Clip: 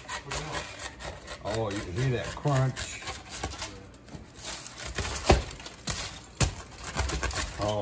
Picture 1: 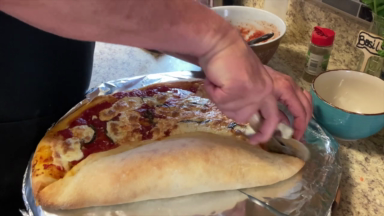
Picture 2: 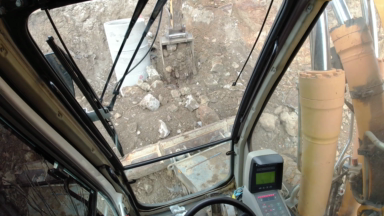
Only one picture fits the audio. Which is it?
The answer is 1